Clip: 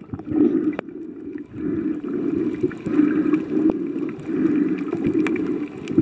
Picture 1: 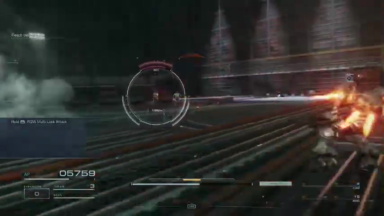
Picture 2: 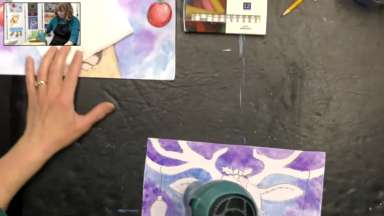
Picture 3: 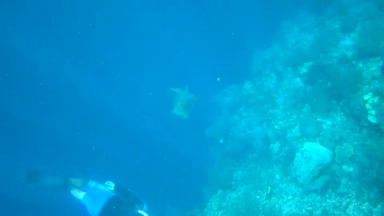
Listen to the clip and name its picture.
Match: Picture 3